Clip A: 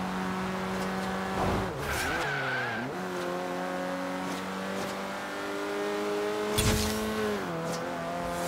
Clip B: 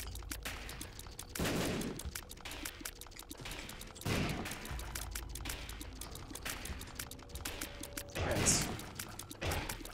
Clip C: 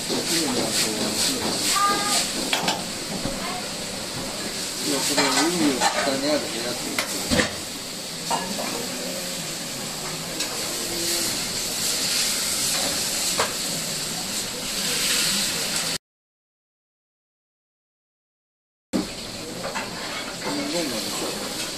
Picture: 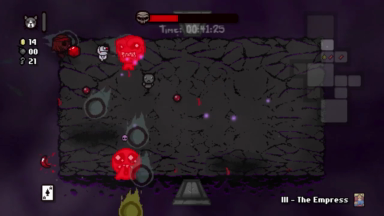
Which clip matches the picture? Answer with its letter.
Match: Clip B